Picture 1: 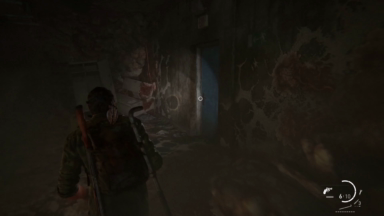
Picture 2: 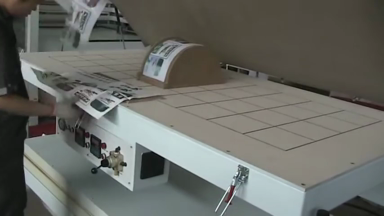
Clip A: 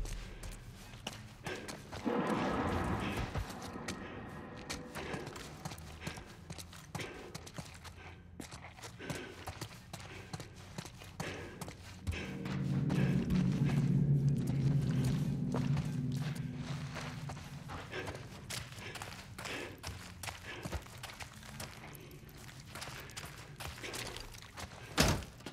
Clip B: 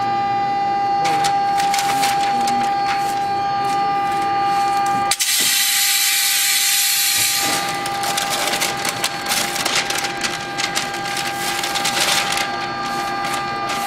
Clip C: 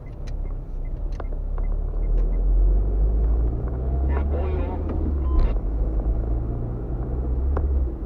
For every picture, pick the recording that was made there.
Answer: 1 A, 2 B